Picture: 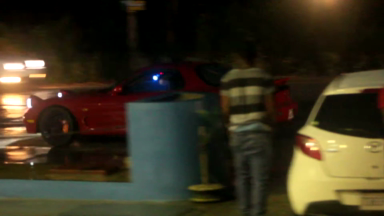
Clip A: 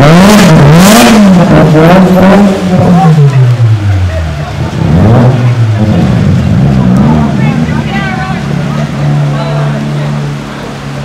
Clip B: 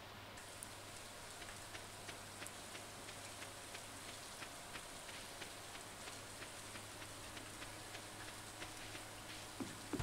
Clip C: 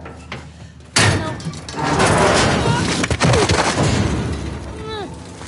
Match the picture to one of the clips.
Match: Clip A